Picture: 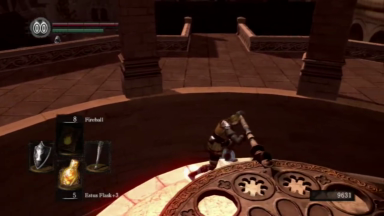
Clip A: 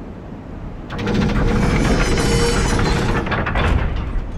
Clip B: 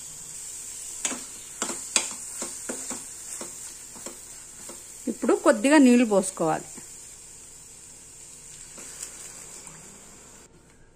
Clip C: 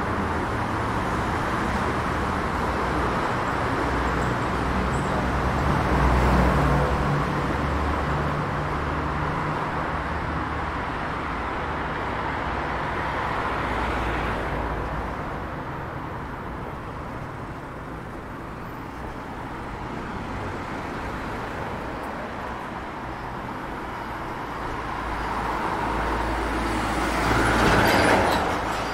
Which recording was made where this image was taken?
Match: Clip A